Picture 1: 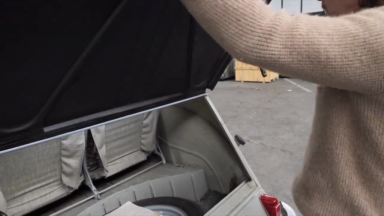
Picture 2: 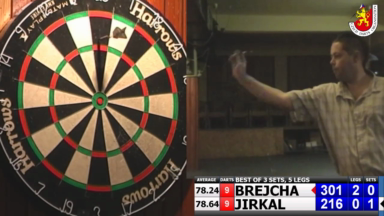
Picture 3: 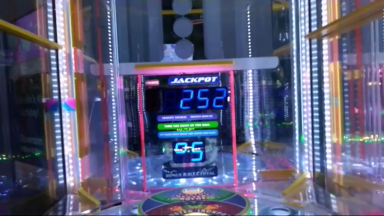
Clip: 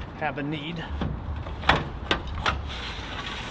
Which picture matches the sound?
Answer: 1